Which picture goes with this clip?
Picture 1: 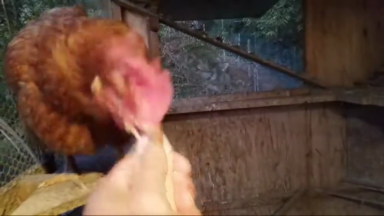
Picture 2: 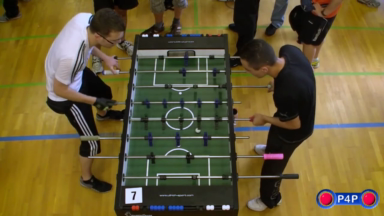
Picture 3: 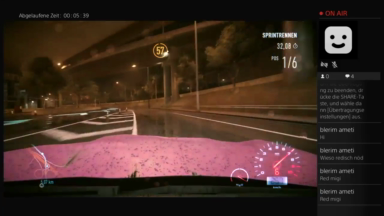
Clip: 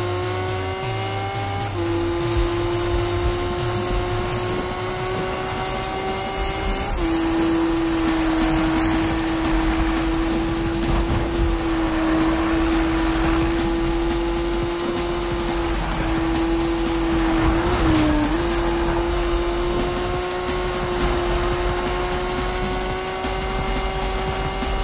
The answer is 3